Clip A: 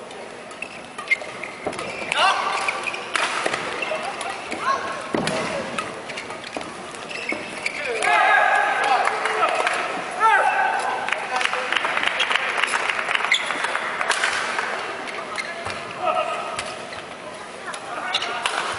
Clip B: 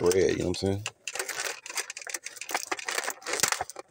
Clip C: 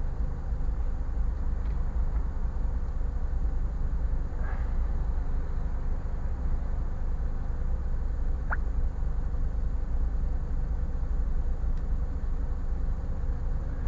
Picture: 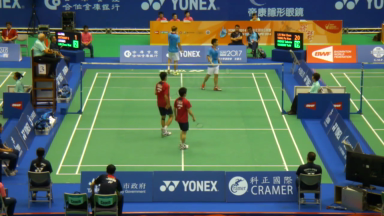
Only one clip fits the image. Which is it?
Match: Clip A